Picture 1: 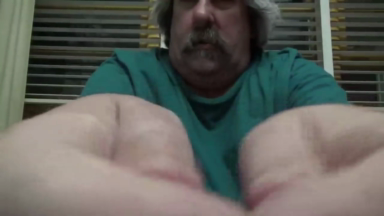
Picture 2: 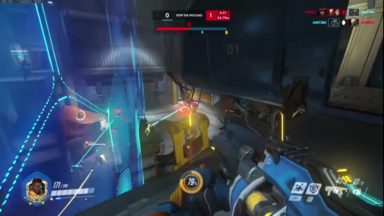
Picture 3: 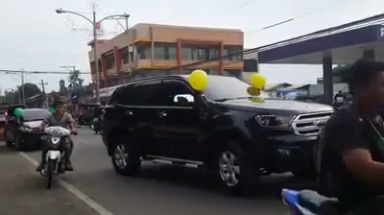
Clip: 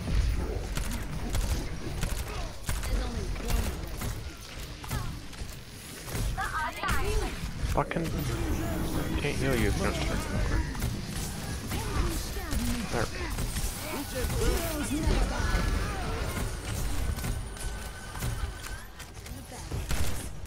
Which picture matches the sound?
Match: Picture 2